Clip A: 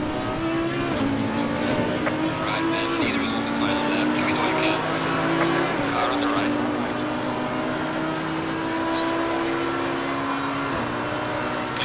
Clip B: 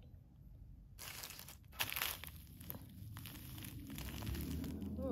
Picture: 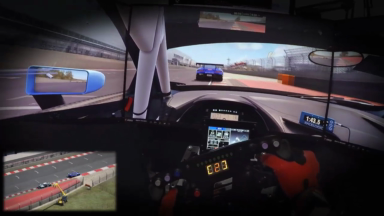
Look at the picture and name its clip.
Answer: A